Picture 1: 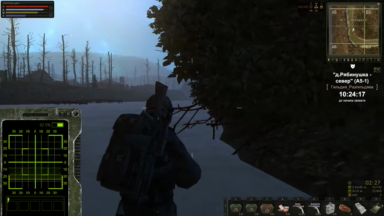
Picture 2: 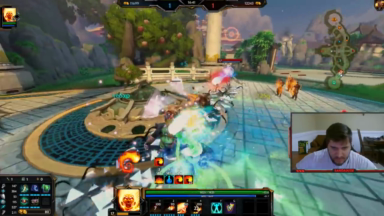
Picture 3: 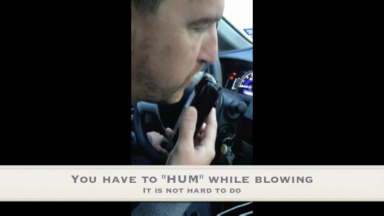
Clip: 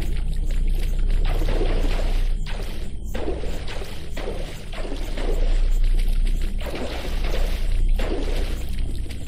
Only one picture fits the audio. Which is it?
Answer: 1